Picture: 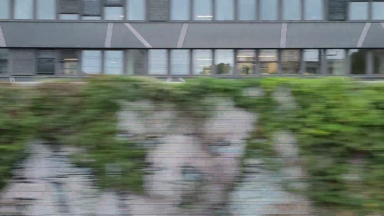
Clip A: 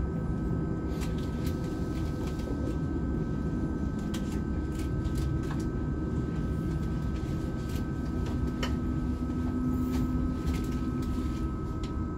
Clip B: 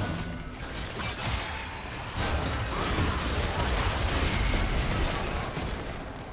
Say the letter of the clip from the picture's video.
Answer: A